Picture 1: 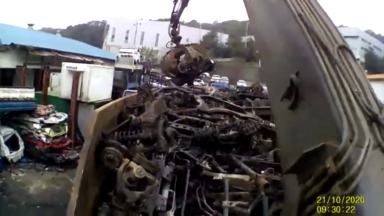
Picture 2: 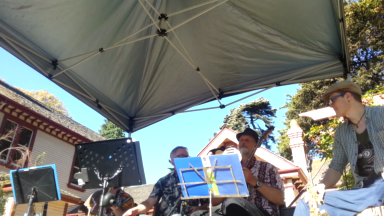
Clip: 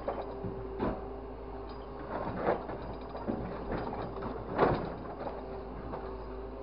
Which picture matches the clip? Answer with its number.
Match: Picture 1